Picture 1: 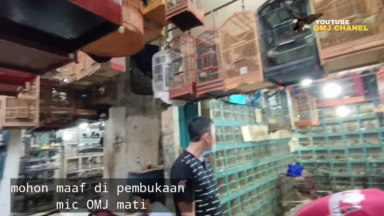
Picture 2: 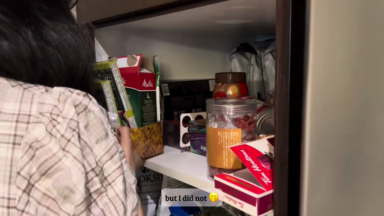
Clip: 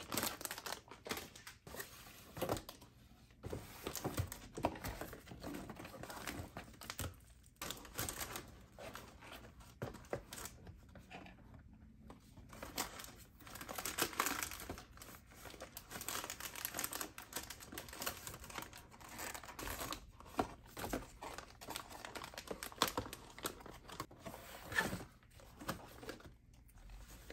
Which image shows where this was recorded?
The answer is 2